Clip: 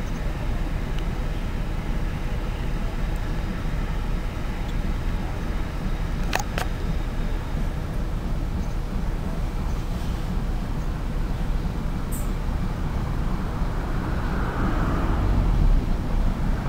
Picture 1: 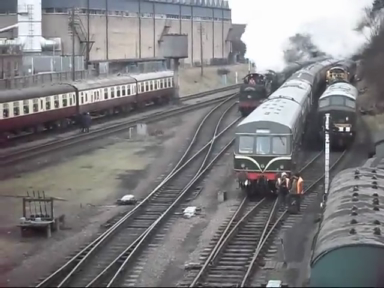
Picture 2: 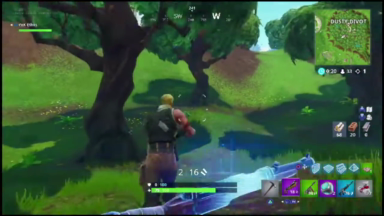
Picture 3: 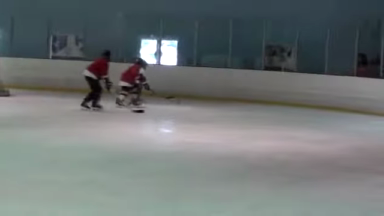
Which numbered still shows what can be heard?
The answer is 1